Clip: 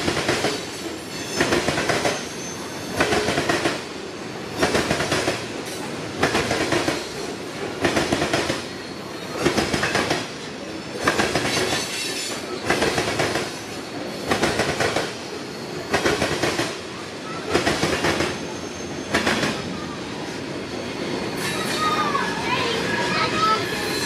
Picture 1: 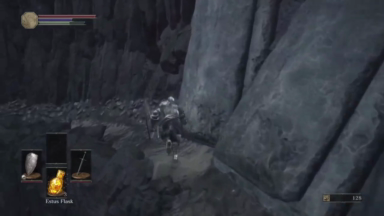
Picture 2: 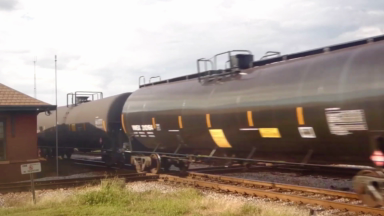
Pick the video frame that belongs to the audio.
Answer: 2